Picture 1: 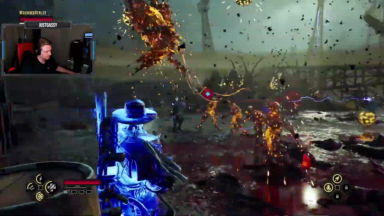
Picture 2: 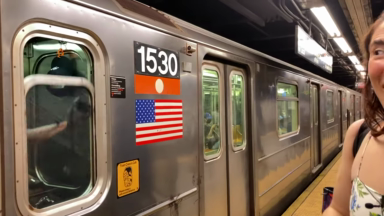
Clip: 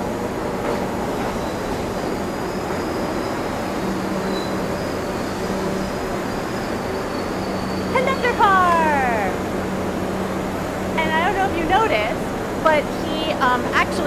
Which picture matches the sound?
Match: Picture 2